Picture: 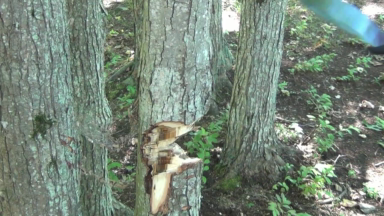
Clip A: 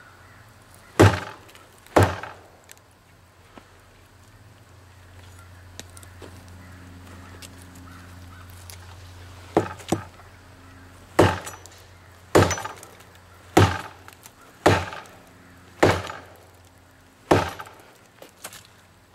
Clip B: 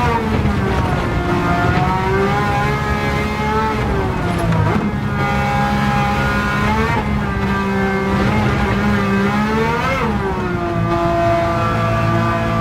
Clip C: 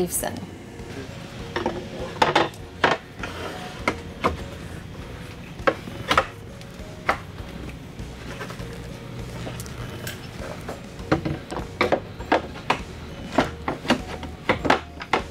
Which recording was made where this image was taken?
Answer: A